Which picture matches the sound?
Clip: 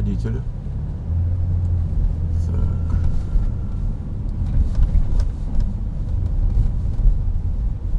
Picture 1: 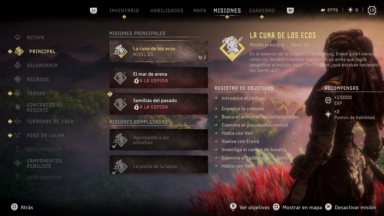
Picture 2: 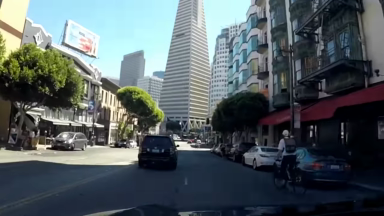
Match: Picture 2